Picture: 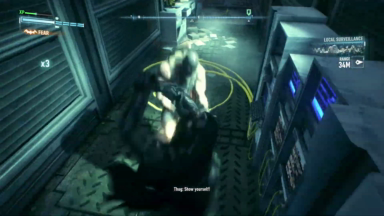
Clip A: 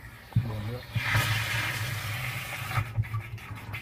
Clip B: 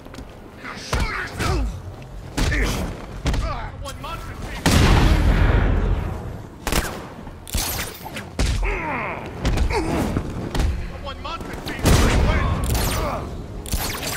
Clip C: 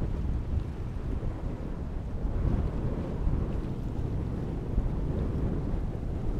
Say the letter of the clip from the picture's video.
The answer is B